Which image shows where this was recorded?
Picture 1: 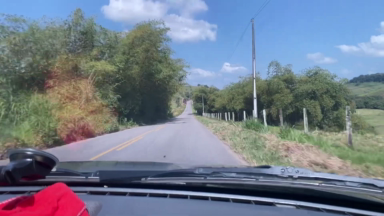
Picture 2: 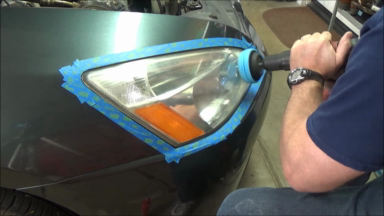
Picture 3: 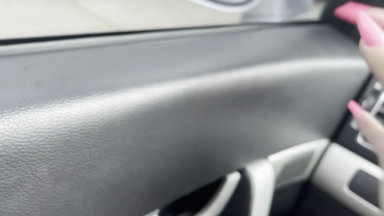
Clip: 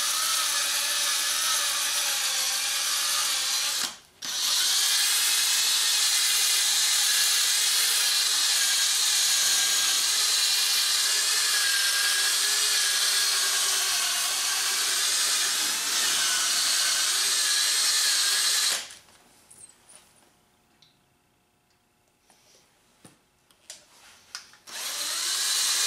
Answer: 2